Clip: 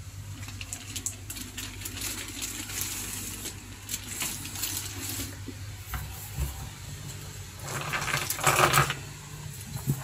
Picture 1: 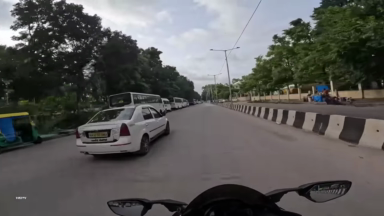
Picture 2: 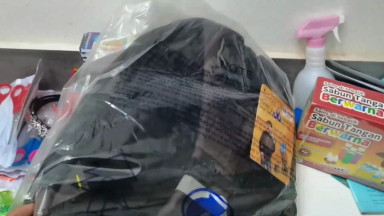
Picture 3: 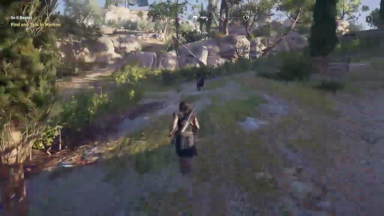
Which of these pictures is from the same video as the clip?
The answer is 2